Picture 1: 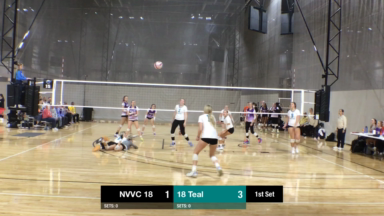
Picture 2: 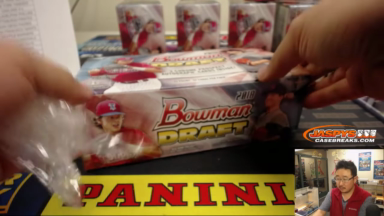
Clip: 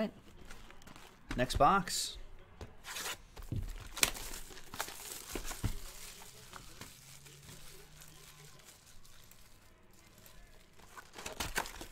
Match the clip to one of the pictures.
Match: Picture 2